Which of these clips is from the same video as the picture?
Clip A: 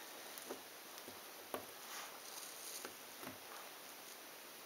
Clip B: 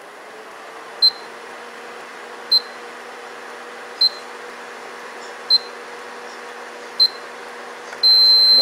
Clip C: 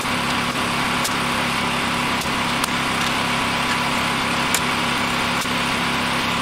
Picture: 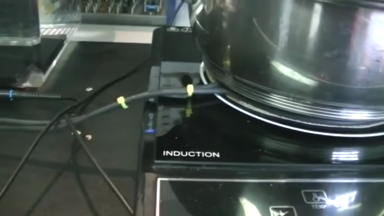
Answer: B